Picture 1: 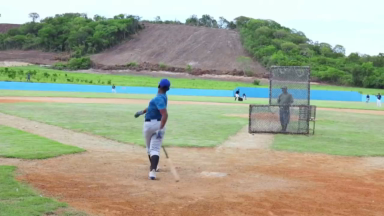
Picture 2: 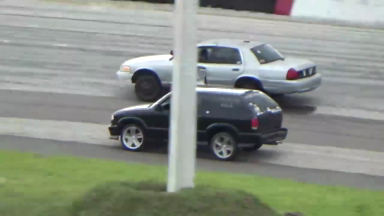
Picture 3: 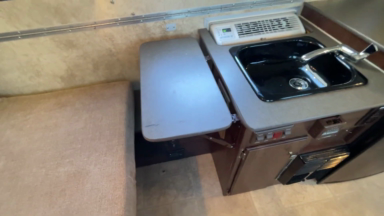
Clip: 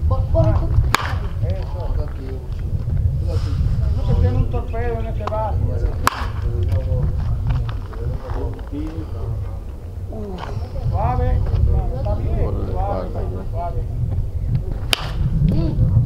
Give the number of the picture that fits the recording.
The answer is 1